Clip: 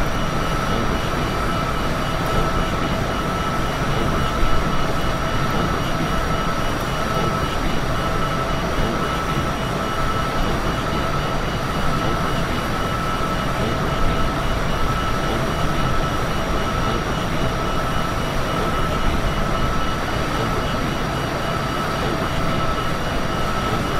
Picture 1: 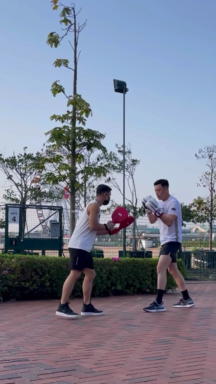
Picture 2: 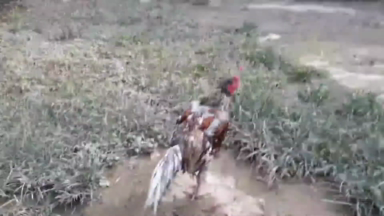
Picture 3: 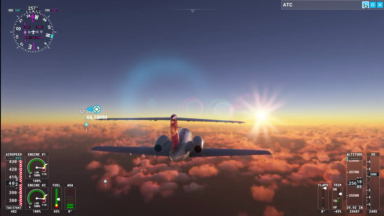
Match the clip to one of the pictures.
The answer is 3